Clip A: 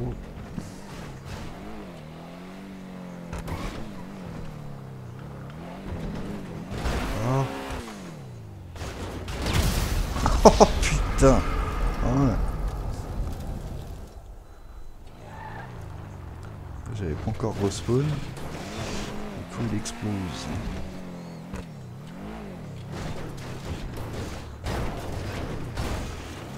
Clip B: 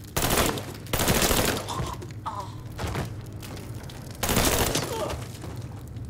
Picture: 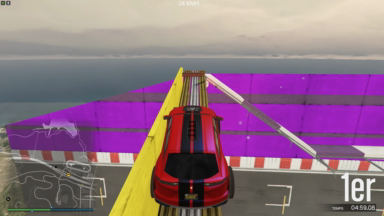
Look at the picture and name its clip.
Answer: A